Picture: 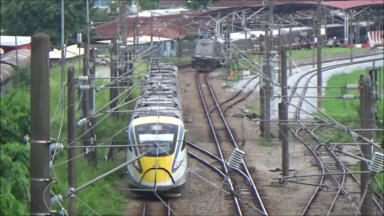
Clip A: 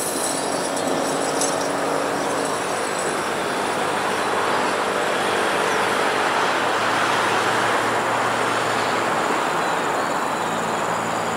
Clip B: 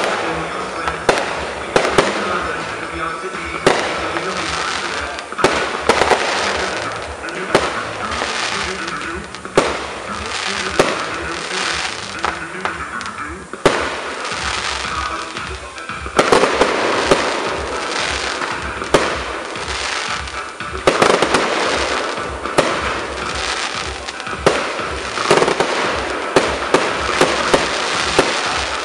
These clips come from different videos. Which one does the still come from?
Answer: A